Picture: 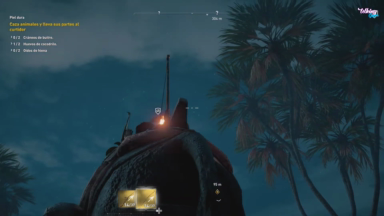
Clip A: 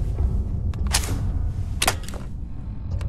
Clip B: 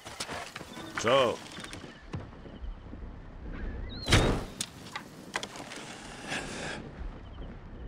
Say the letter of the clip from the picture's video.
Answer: B